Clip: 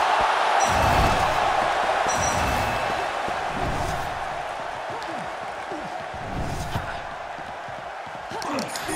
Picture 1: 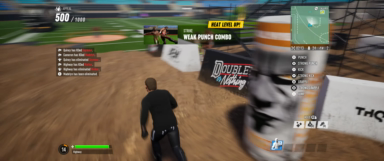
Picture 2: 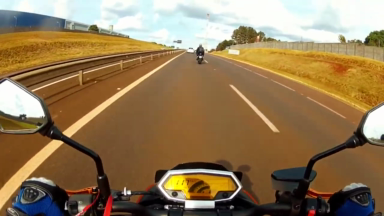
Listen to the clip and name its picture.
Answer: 1